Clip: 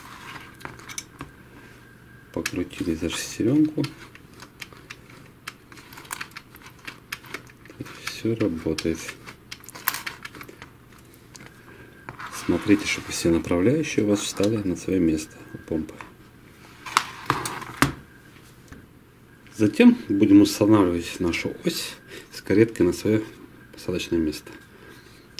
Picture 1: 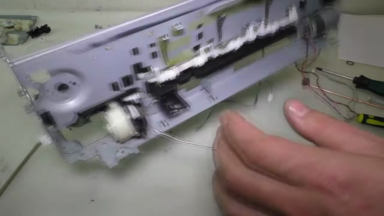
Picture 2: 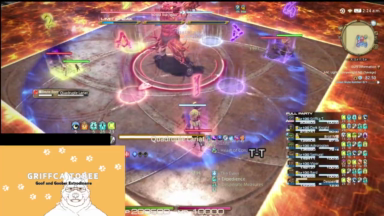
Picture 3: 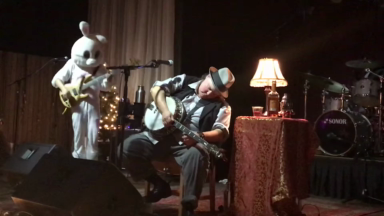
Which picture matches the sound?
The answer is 1